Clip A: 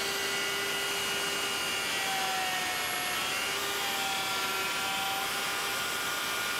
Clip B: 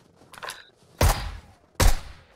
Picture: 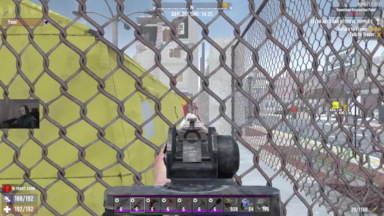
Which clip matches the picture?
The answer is B